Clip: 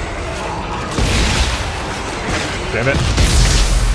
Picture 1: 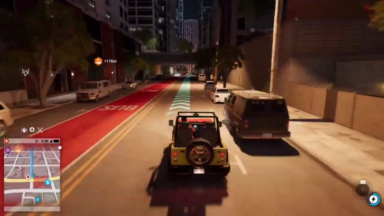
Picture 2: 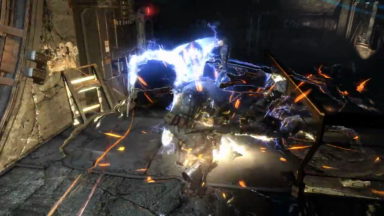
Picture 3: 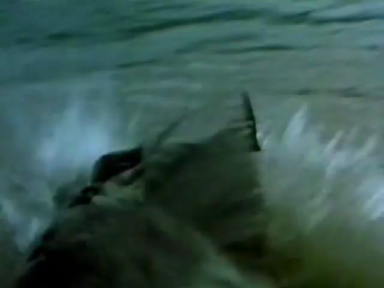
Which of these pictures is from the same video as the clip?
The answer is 2